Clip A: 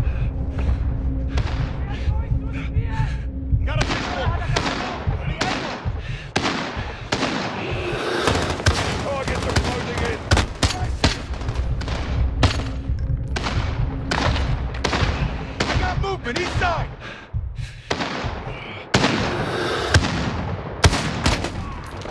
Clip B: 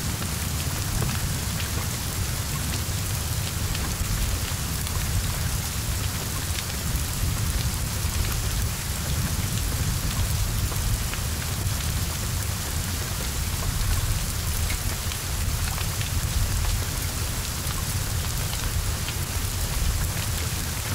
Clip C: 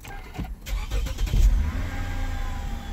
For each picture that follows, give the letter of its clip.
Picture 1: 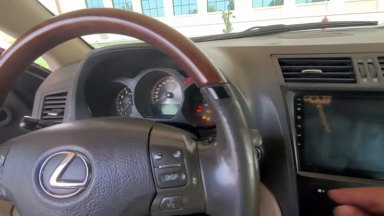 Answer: C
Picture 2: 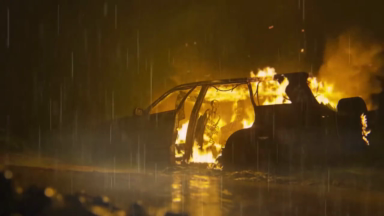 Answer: B